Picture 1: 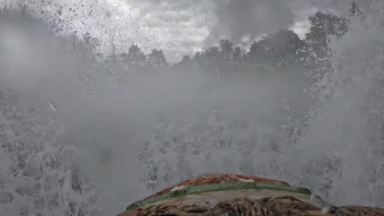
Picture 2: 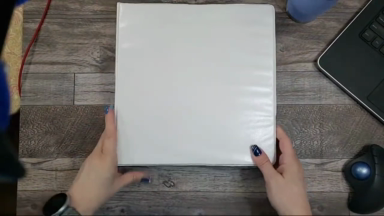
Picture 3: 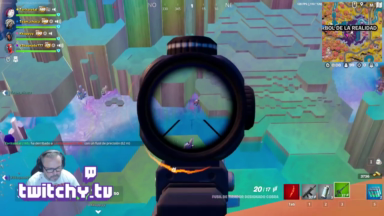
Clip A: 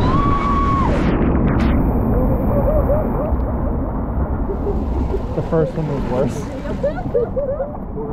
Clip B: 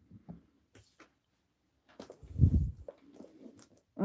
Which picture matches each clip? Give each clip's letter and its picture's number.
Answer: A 1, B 2